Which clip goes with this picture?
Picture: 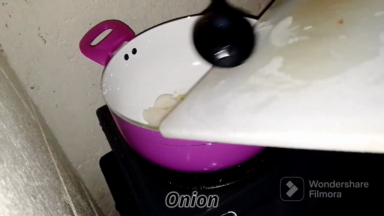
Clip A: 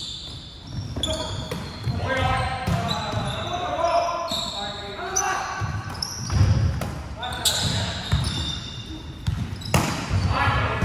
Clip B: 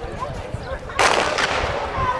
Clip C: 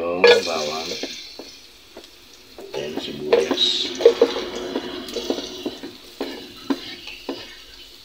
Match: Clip C